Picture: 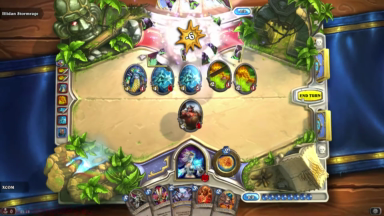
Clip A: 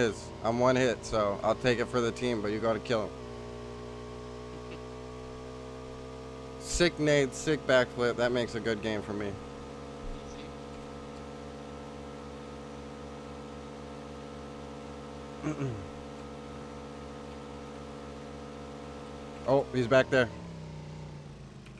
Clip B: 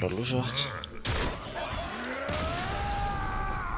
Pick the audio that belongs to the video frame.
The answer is B